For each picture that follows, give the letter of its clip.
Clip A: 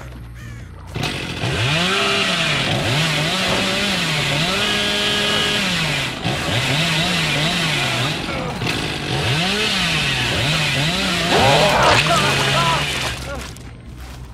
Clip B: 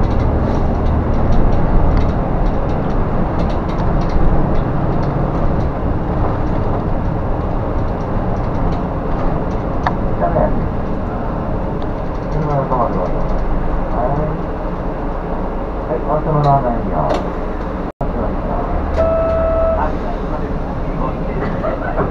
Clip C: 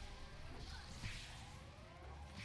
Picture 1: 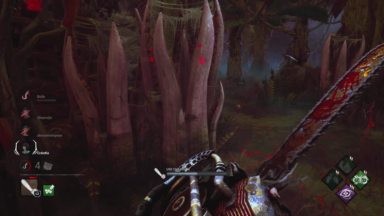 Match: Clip A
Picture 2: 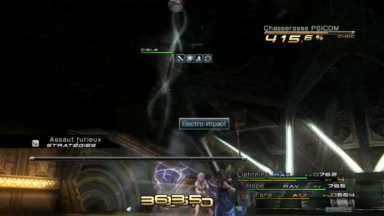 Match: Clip C